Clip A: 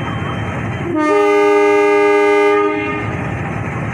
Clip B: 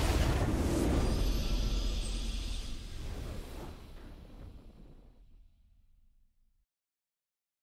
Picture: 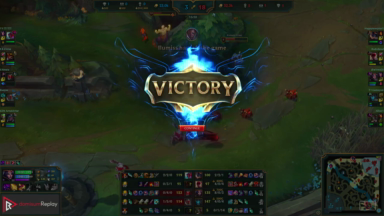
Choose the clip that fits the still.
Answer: B